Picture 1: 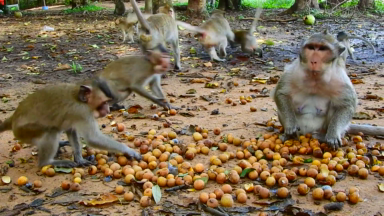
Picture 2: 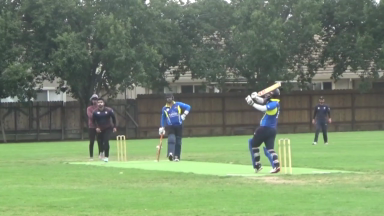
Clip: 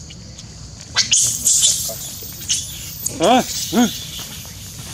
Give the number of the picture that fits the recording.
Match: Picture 1